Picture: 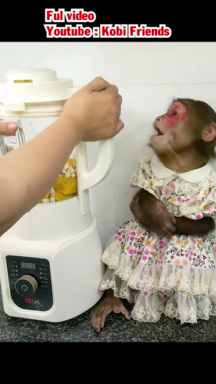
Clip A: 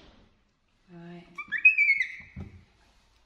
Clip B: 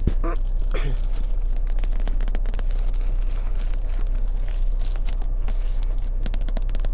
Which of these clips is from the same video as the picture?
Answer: A